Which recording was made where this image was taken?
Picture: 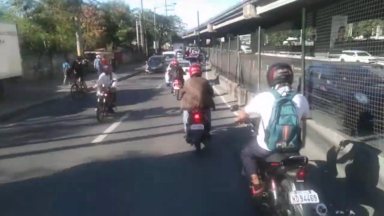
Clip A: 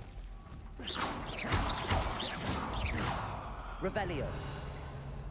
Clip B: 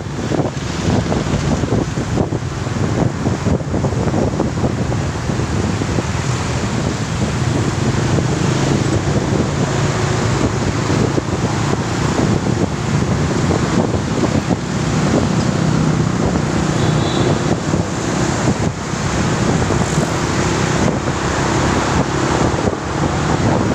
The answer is B